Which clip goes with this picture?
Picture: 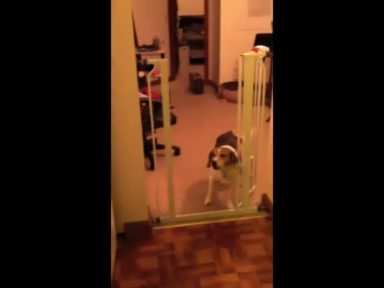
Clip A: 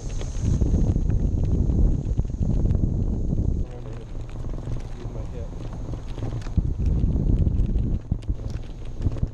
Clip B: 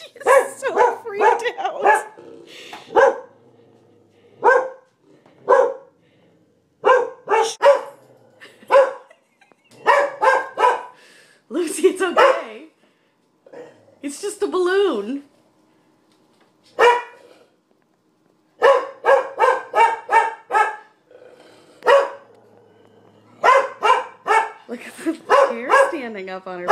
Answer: B